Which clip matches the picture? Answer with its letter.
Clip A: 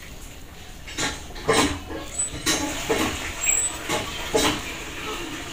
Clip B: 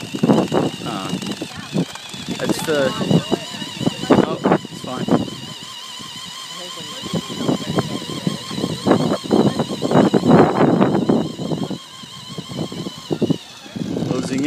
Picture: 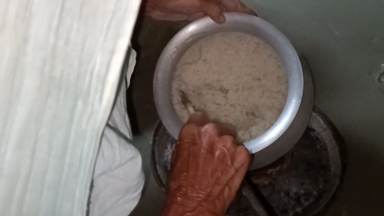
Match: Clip A